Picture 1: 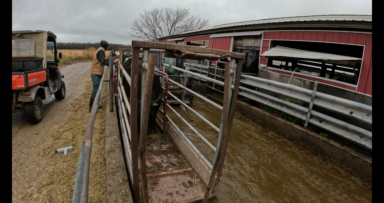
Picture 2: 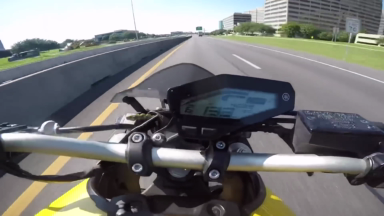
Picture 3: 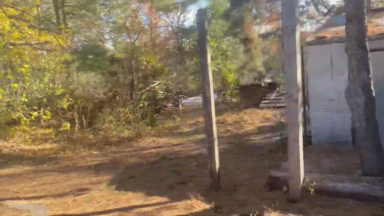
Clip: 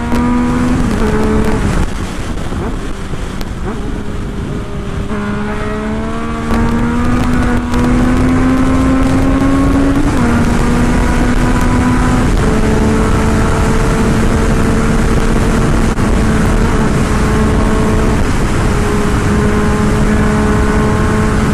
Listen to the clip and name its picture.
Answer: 2